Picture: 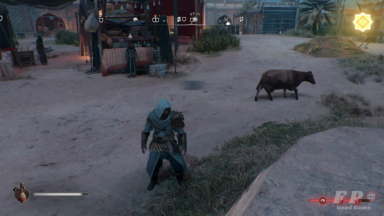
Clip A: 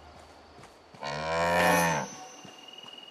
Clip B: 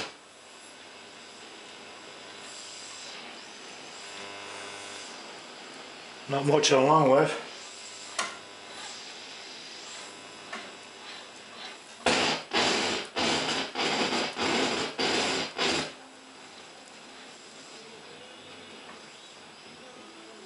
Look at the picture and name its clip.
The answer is A